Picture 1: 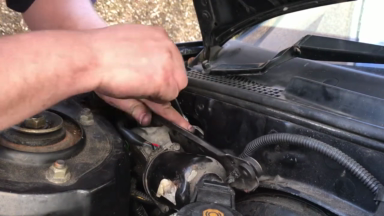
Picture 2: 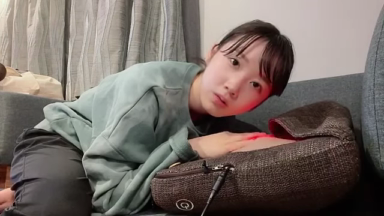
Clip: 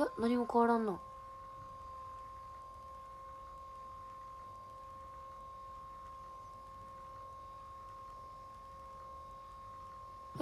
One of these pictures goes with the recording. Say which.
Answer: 2